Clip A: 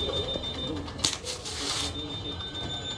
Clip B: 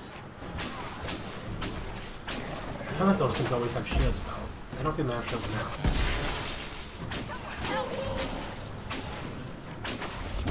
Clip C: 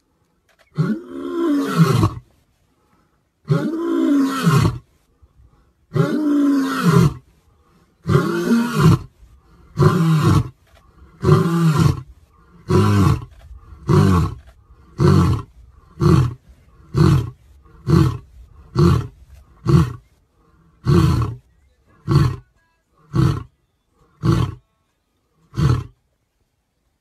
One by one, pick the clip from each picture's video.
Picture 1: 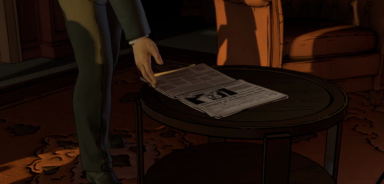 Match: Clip A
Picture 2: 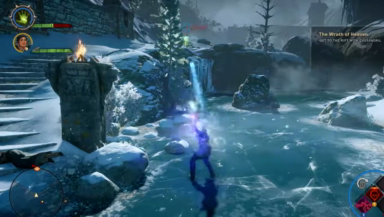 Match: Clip B